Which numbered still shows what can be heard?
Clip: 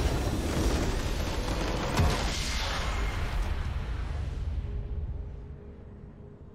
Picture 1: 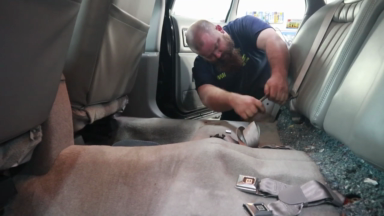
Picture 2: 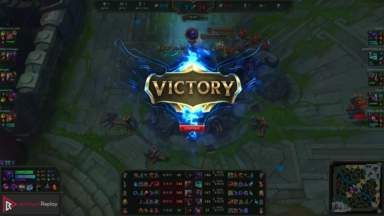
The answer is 2